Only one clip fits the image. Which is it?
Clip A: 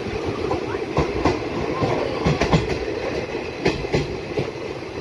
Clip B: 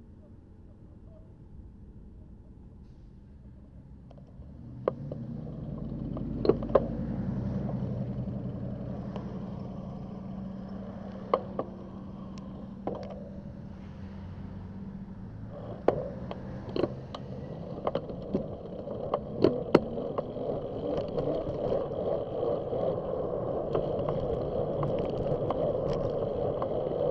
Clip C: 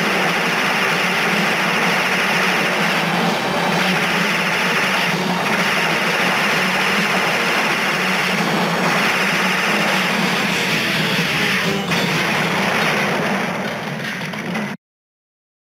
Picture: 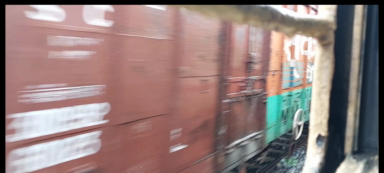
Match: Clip A